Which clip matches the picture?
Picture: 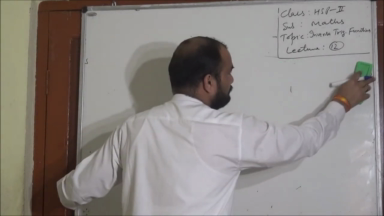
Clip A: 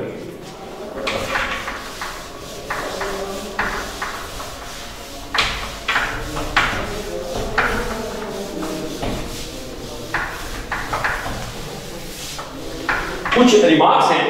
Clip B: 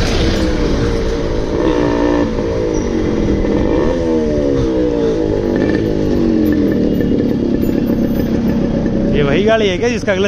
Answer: A